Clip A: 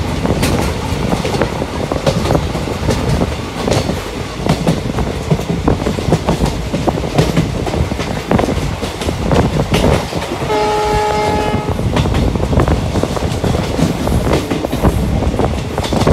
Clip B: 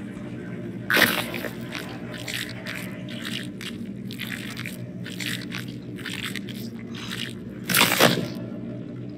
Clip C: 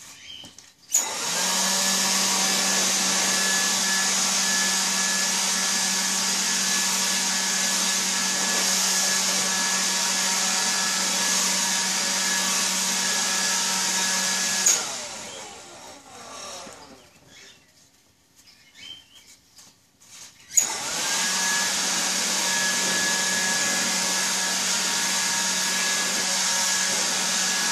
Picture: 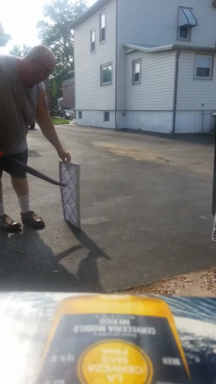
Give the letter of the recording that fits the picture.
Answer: C